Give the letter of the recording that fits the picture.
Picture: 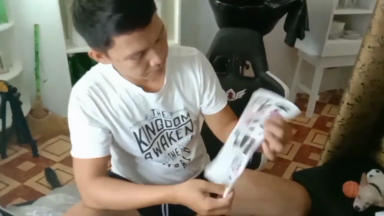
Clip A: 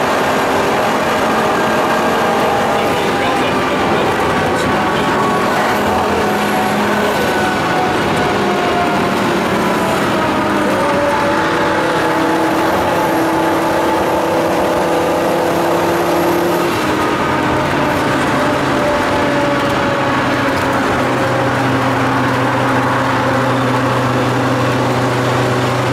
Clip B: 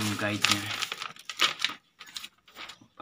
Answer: B